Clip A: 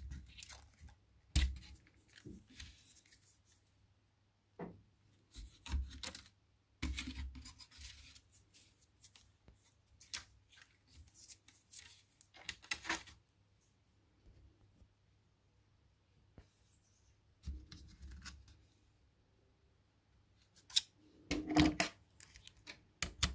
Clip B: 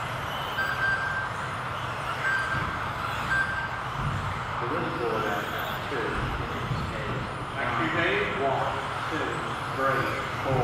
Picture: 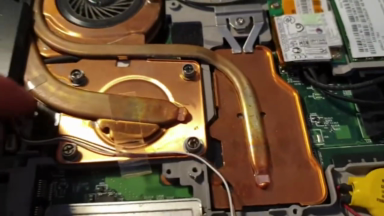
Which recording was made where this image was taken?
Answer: A